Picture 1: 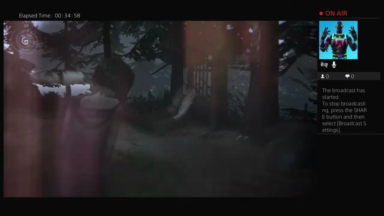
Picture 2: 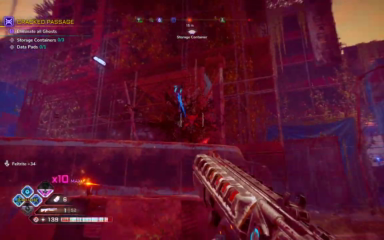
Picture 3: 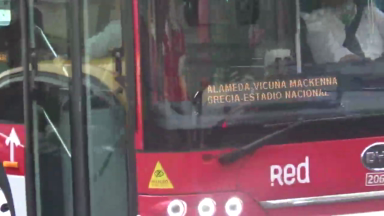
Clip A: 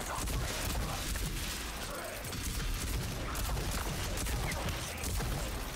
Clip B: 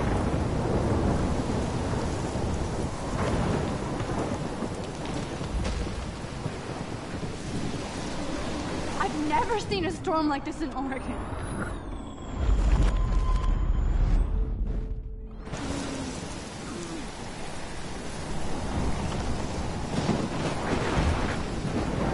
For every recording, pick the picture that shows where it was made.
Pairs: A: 2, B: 1